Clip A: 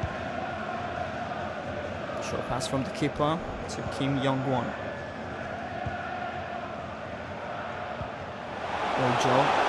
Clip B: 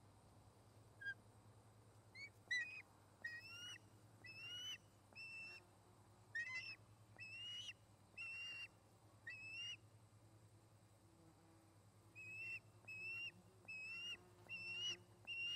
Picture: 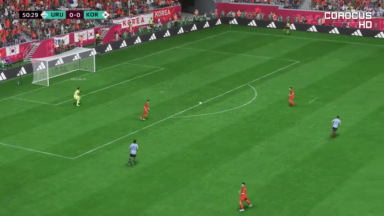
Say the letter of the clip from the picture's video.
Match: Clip A